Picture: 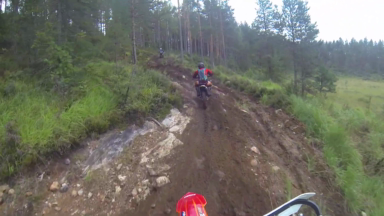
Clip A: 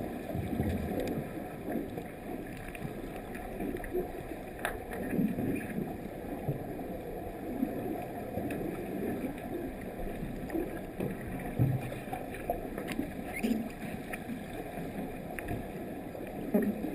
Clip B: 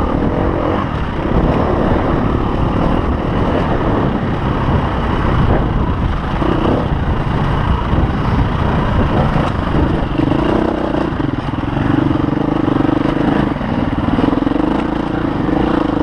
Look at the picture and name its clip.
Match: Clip B